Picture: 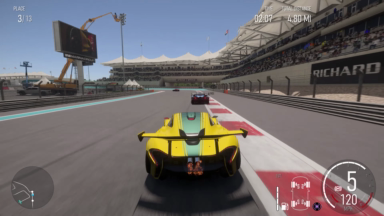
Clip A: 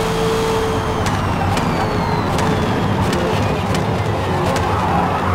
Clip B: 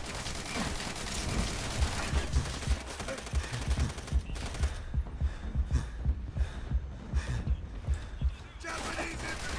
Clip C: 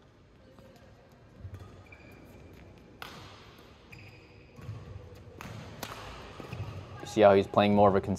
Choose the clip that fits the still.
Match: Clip A